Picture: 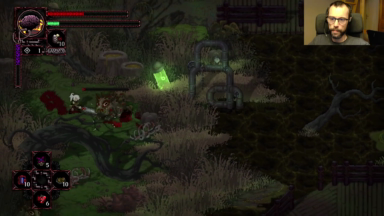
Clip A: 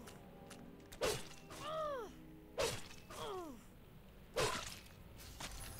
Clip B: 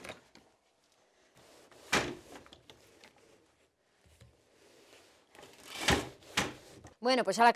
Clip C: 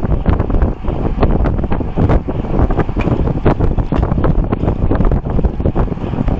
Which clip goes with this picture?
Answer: A